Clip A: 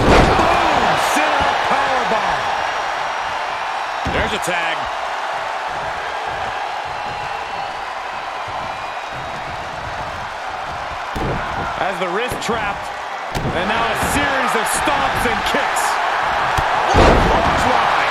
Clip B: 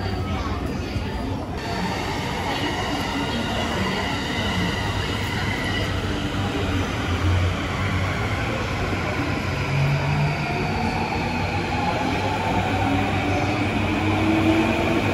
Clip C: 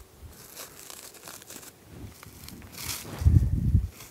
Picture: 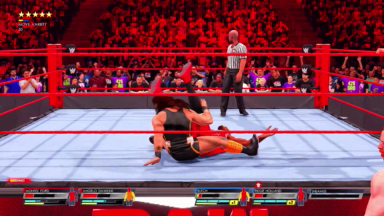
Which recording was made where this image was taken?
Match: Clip A